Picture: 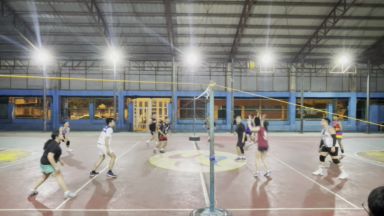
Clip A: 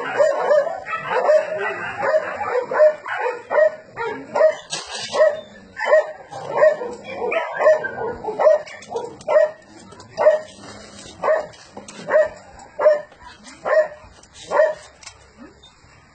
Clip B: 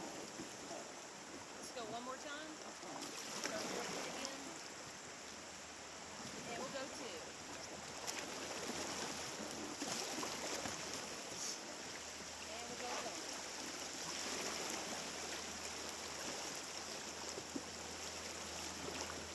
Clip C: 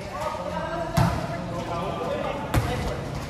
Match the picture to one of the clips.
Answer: C